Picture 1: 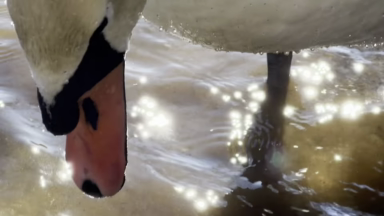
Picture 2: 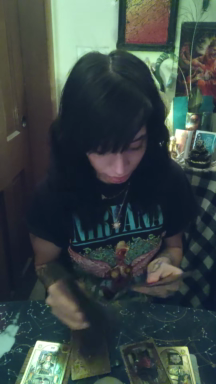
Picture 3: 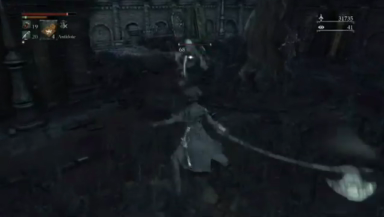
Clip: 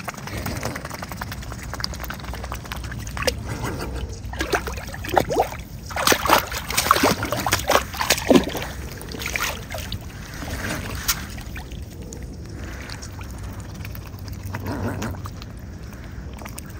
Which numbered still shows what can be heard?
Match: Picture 1